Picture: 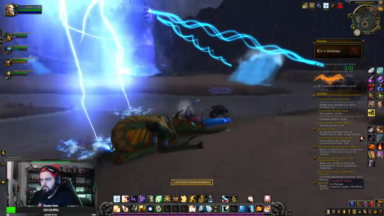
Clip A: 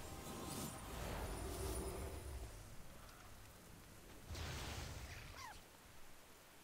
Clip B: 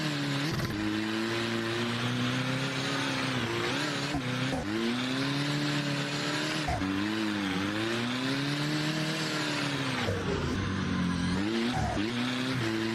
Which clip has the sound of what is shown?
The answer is A